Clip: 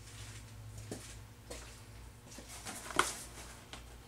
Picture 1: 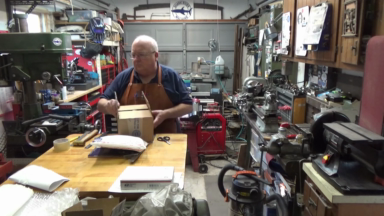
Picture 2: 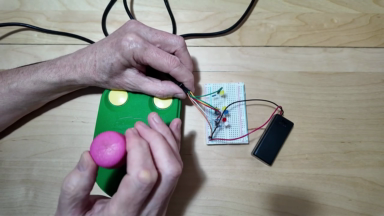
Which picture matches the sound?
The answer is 1